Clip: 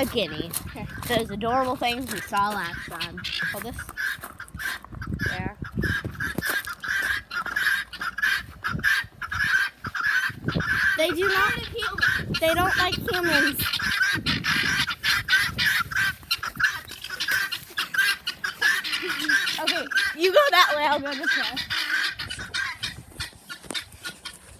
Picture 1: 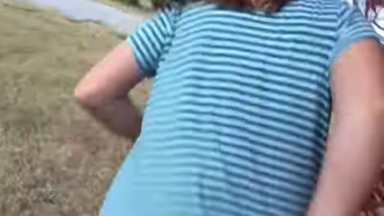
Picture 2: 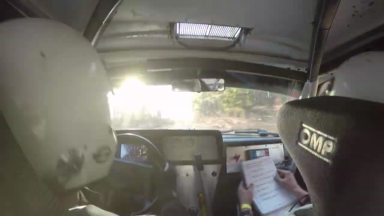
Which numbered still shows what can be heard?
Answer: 1